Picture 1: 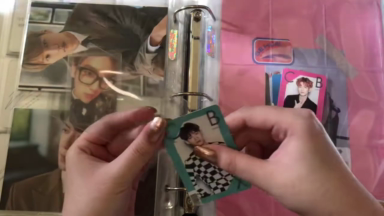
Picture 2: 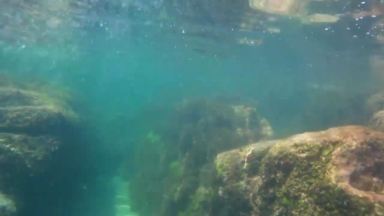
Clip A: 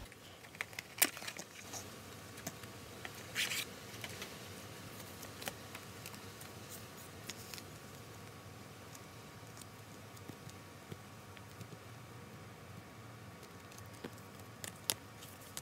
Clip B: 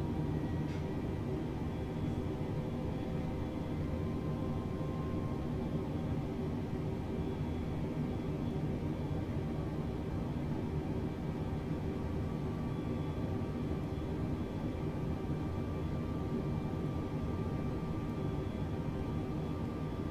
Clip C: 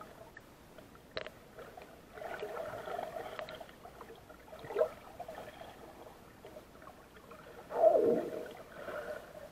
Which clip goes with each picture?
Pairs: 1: A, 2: C